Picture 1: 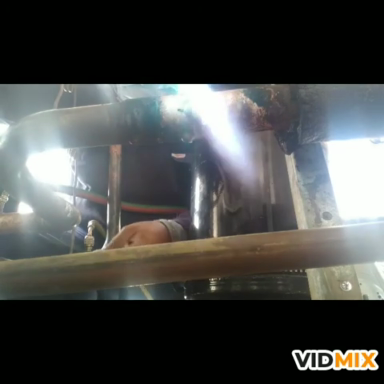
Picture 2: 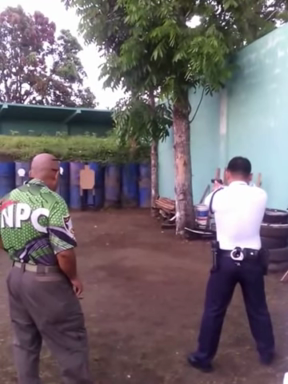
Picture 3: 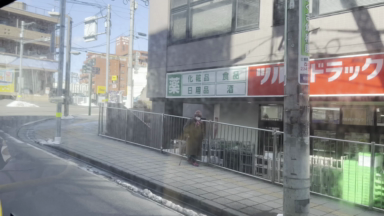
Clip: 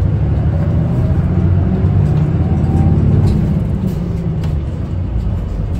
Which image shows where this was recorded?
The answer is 3